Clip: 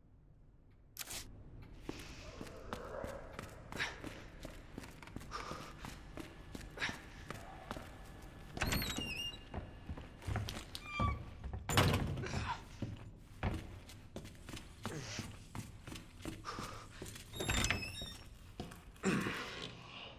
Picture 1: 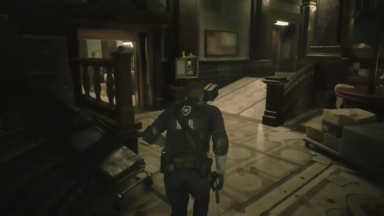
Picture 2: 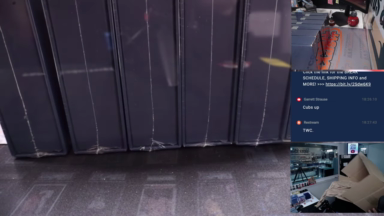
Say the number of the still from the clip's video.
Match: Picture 1